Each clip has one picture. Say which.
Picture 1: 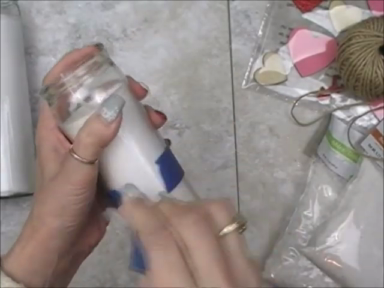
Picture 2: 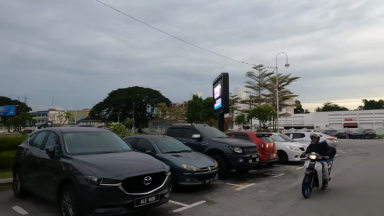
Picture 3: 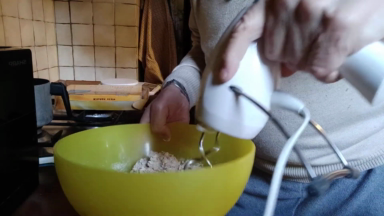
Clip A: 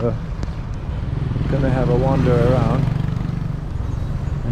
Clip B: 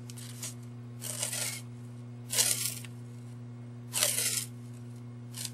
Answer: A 2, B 1